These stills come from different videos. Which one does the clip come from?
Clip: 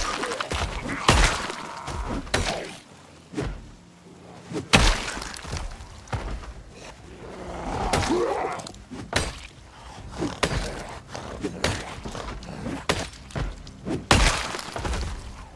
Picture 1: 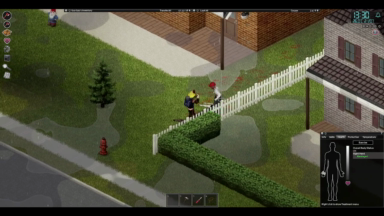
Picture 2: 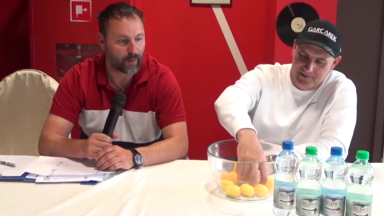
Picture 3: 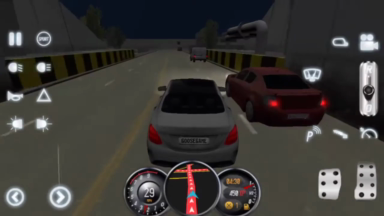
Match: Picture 1